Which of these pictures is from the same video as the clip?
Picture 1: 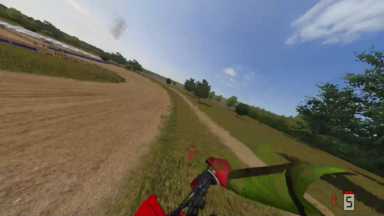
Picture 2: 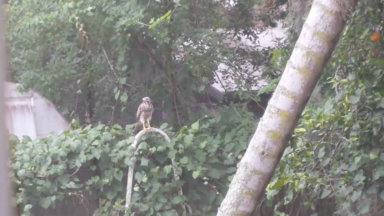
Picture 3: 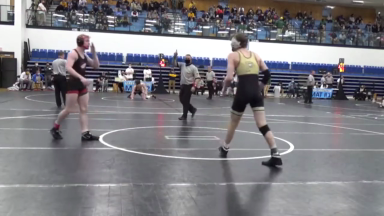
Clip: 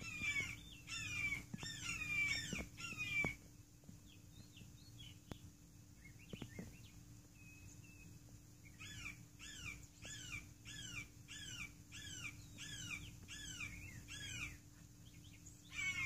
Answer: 2